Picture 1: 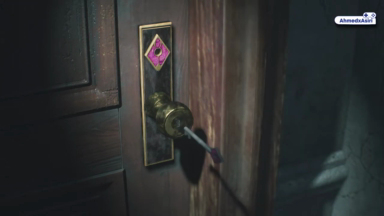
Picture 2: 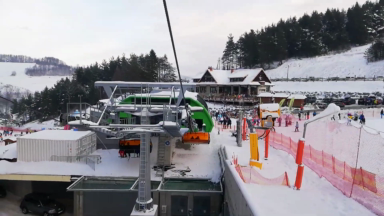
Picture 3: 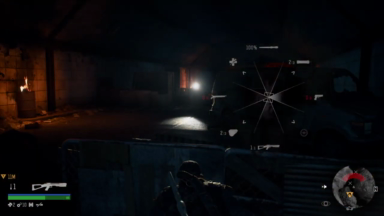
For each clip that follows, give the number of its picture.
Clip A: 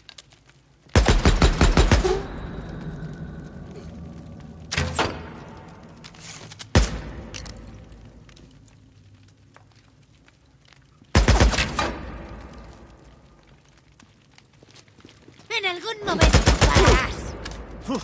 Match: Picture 3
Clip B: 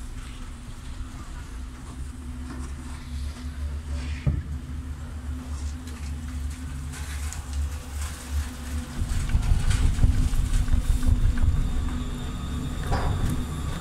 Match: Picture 2